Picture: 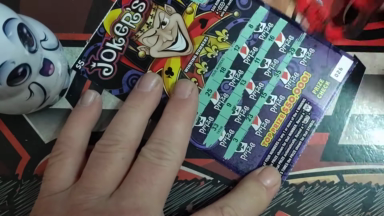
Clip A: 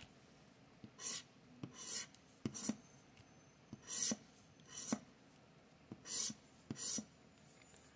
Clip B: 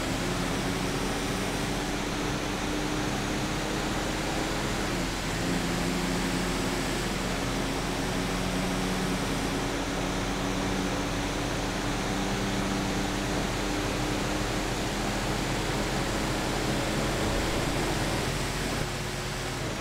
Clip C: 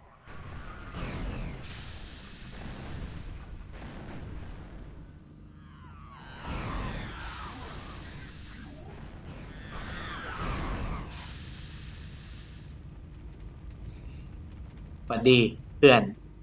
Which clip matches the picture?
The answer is A